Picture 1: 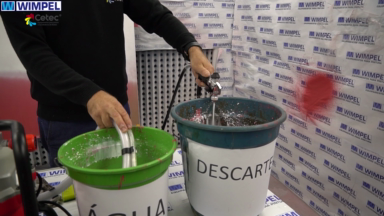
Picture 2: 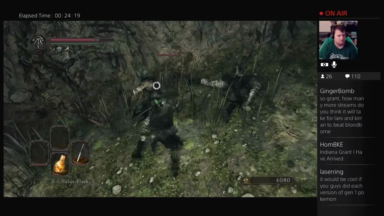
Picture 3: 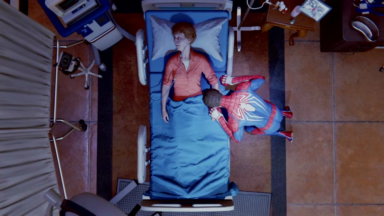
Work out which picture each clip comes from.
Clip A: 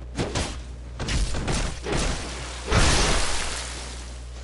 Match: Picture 2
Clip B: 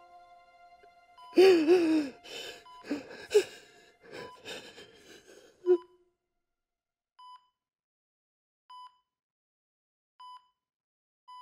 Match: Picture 3